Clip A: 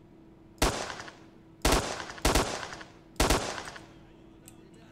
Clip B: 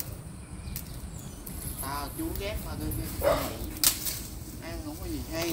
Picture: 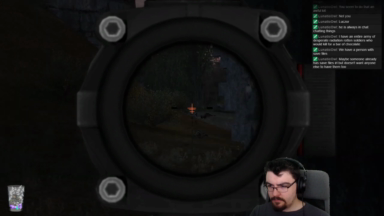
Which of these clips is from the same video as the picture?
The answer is A